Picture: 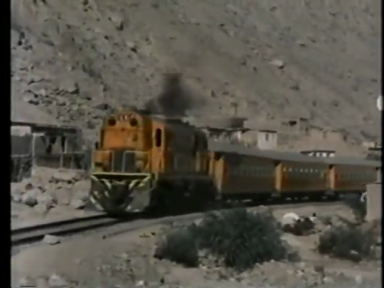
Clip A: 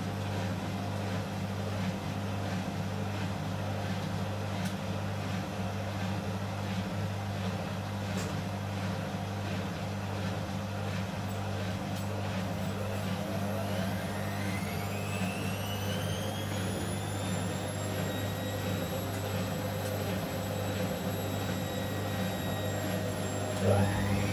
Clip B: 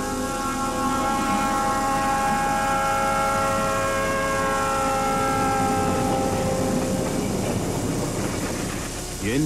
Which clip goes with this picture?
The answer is B